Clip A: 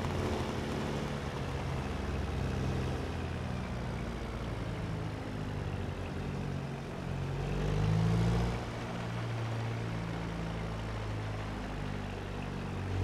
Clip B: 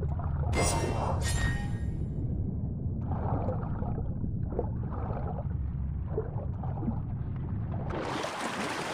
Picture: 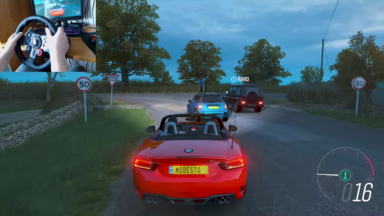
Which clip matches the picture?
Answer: A